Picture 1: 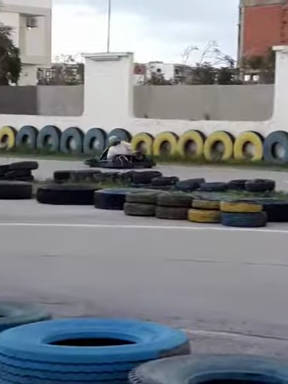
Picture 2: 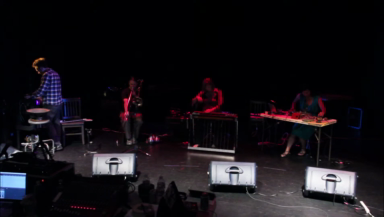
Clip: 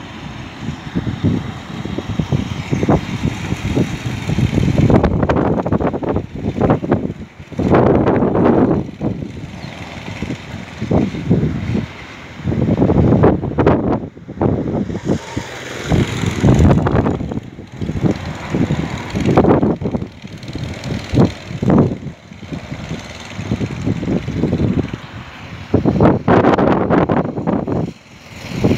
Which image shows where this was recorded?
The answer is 1